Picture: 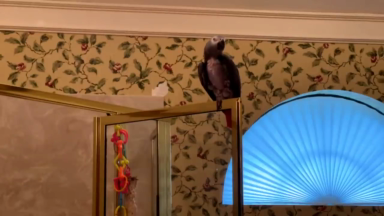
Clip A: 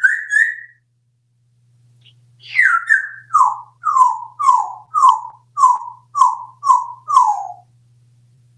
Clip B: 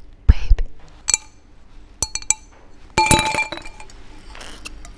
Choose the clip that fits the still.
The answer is A